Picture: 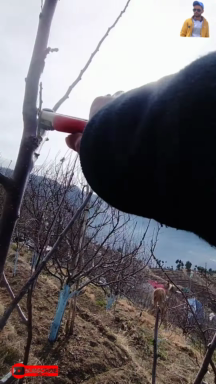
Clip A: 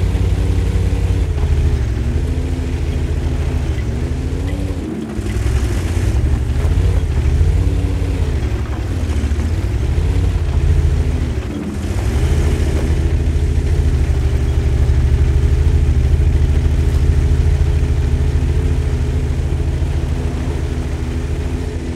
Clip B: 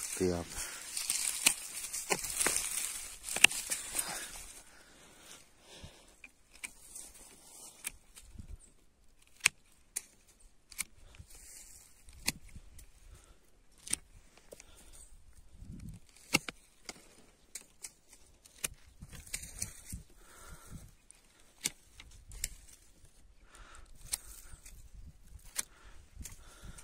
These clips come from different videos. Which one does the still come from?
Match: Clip B